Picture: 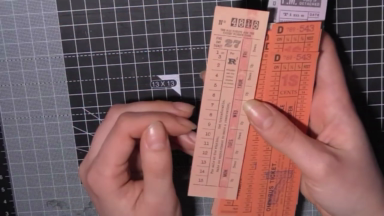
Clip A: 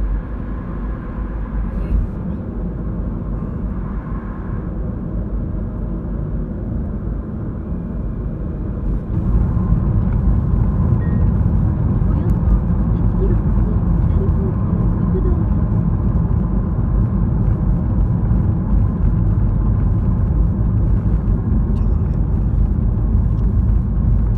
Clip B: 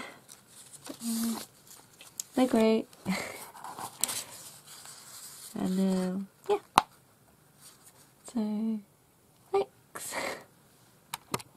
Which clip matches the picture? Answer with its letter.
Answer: B